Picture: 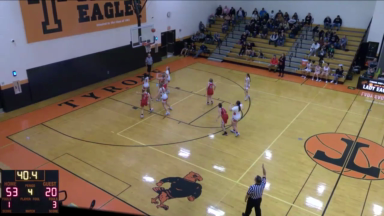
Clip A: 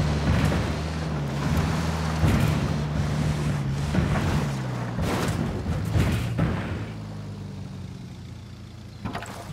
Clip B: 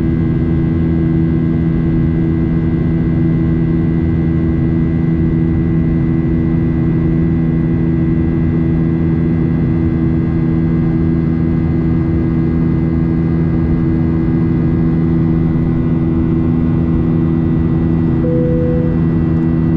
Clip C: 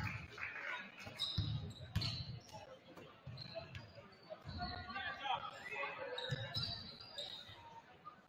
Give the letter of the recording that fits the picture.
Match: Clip C